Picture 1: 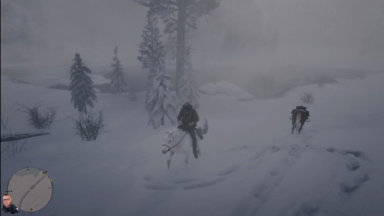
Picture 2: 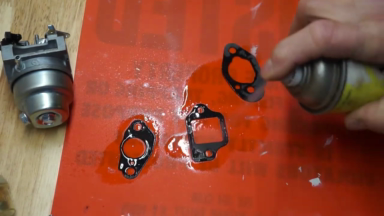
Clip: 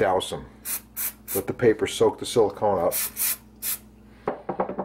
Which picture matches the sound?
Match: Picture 2